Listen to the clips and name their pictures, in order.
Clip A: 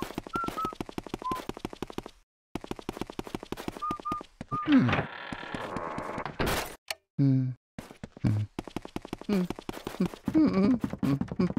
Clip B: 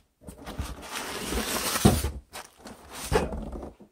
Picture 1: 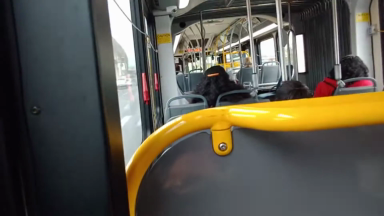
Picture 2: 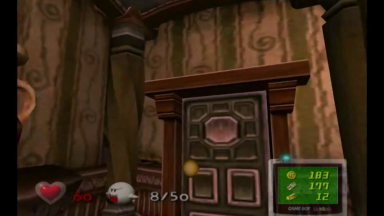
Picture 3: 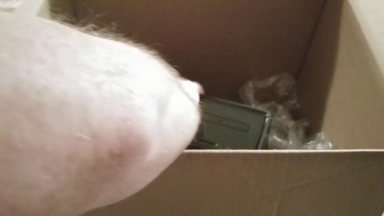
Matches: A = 2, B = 3